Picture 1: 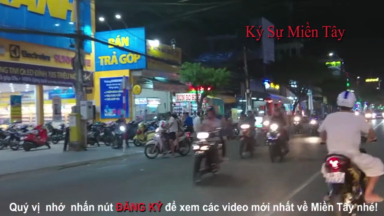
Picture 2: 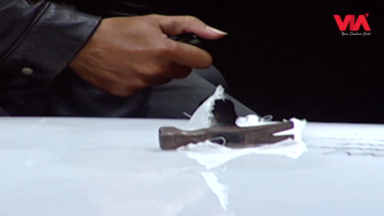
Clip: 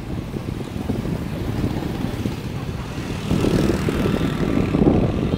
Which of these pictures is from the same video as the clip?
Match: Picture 1